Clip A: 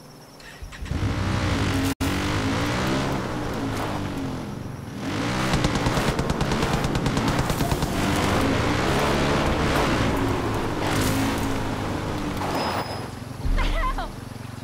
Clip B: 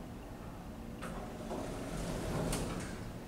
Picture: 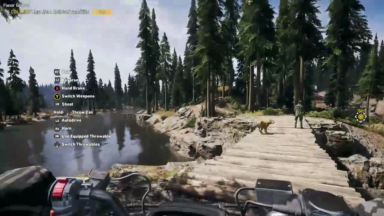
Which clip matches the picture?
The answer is A